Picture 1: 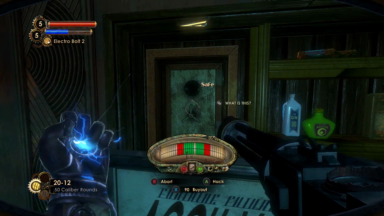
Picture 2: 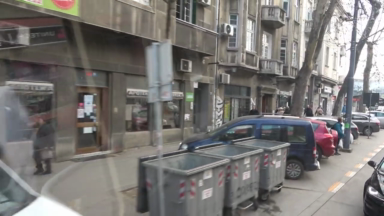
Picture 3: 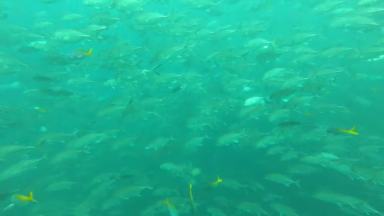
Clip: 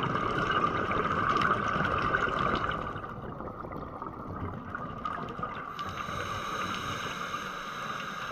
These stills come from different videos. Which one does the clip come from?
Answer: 3